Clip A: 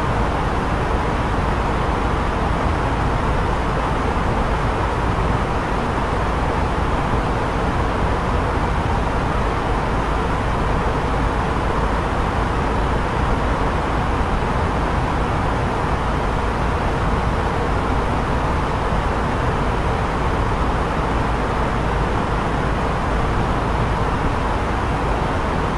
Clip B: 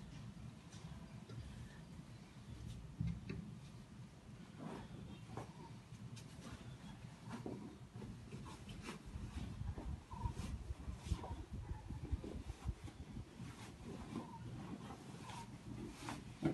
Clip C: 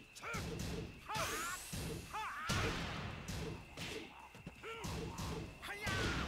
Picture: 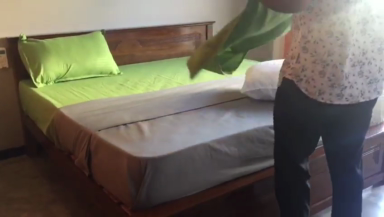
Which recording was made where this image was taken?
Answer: B